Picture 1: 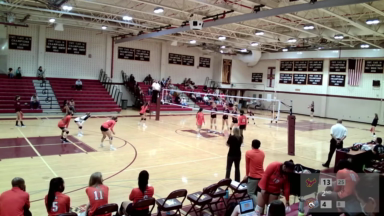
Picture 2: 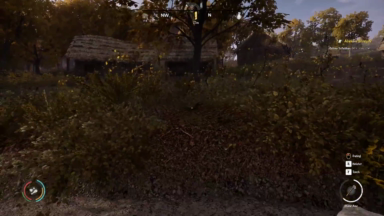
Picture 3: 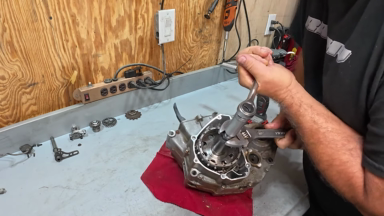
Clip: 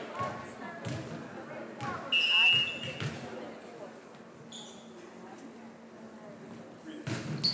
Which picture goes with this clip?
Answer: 1